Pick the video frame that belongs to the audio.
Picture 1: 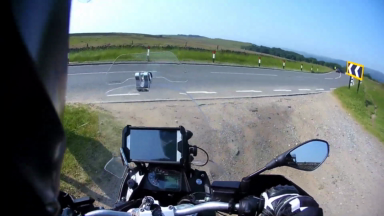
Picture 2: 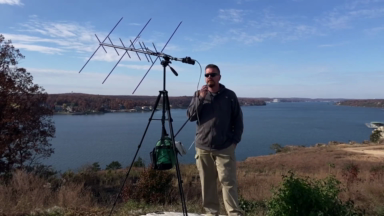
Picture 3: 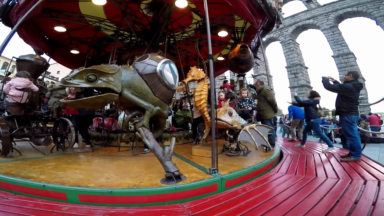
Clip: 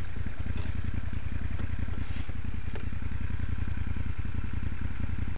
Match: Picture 1